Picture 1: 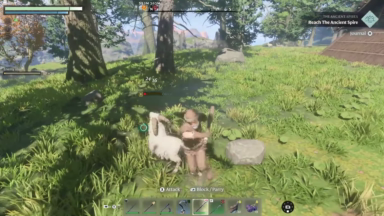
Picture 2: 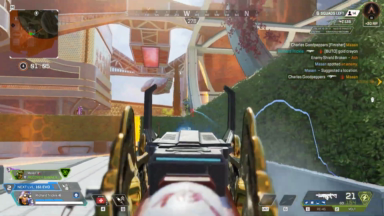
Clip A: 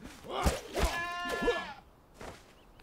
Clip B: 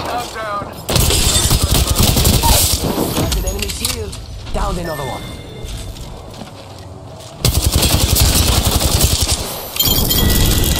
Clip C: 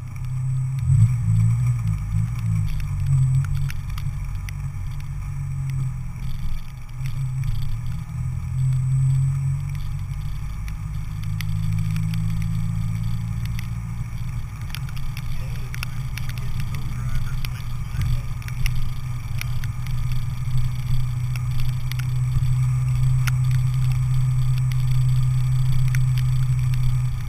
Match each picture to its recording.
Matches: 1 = A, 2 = B